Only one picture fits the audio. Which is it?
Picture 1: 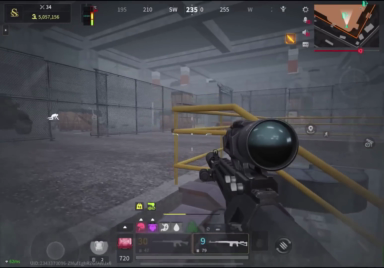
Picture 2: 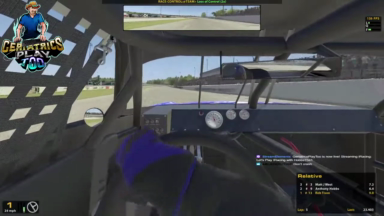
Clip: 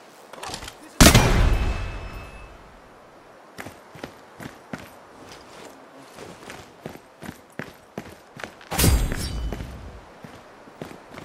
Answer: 1